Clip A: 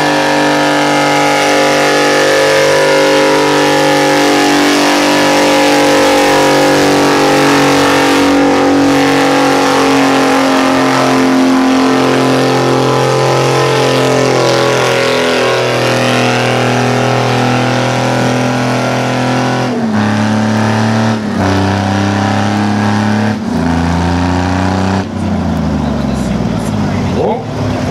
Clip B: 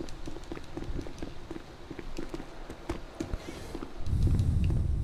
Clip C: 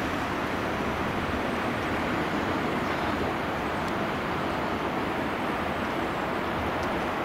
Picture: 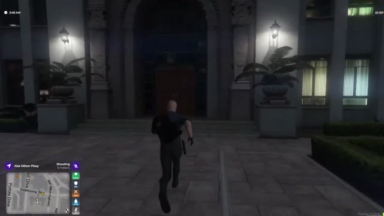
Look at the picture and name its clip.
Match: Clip B